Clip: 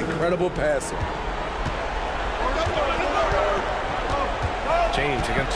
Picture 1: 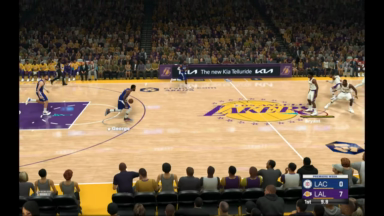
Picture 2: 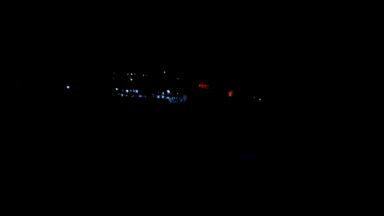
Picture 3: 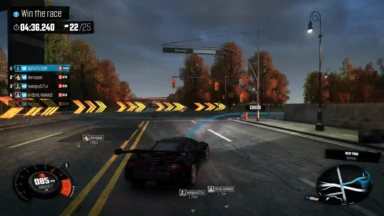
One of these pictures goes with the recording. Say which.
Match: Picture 1